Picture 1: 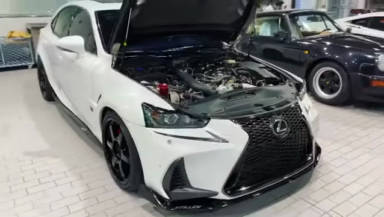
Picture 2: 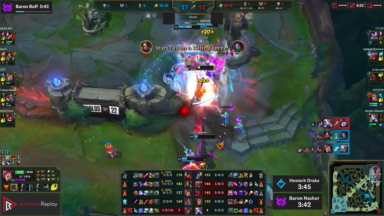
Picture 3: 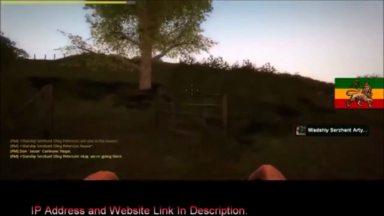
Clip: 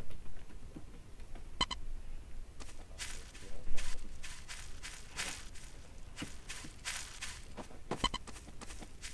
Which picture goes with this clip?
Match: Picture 3